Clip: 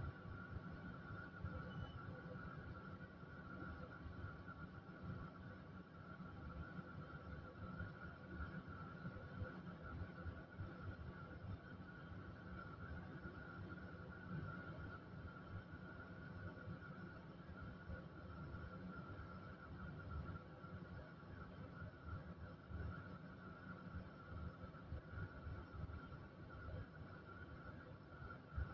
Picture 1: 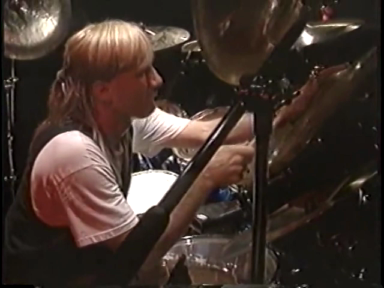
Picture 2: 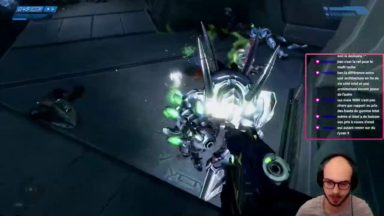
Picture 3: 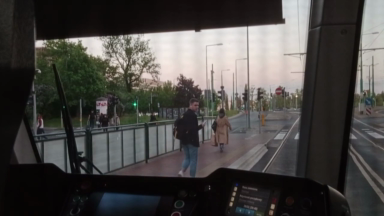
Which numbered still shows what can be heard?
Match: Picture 3